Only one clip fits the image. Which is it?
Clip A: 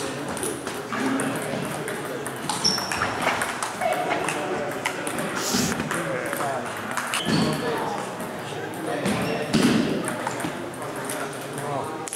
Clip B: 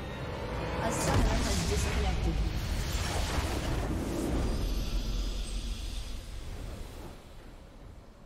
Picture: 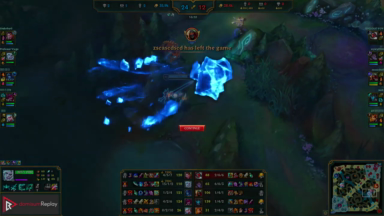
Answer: B